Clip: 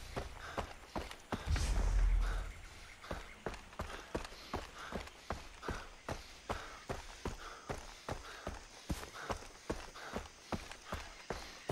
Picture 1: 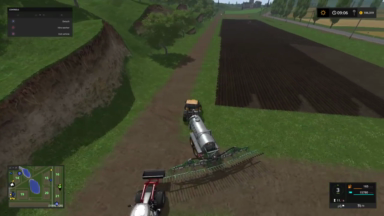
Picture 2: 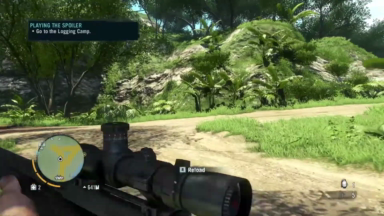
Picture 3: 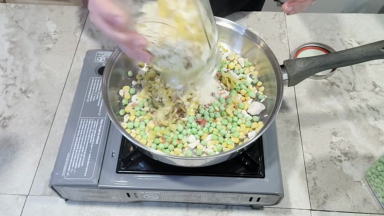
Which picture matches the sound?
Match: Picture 2